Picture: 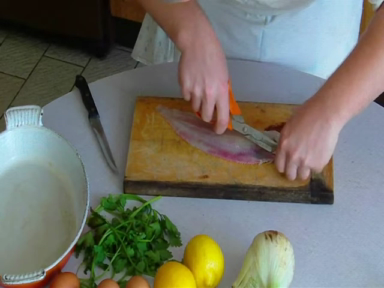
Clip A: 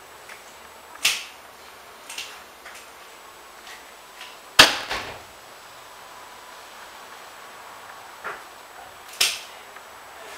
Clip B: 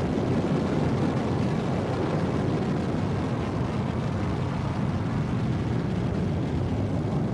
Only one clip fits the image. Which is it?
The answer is A